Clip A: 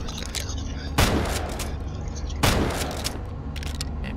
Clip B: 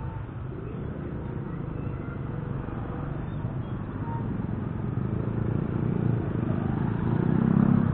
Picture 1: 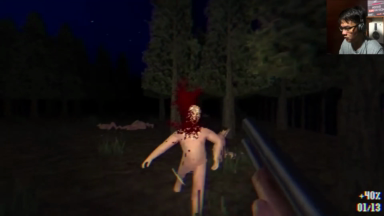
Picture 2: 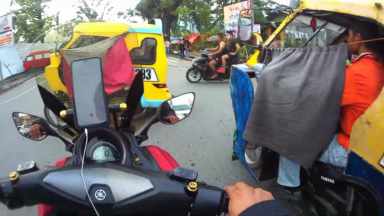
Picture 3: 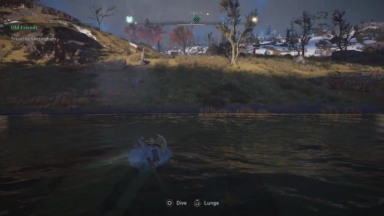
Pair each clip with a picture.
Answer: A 1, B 2